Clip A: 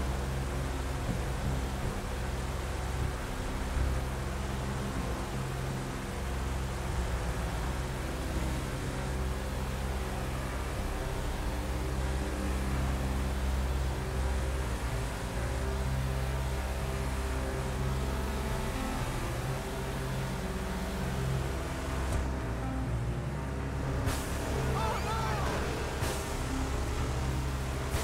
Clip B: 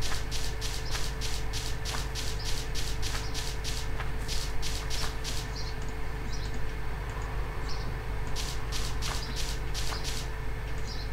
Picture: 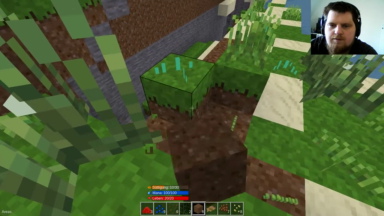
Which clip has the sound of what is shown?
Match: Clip B